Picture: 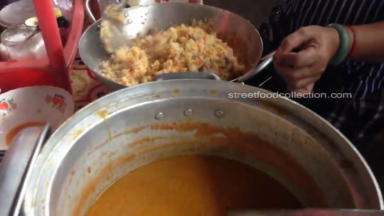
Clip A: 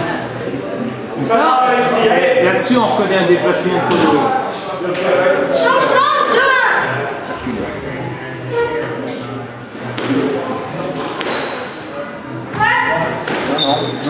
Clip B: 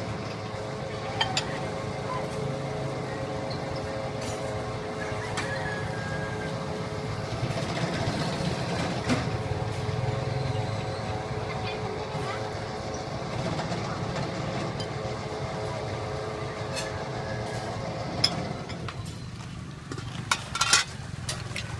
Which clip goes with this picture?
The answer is B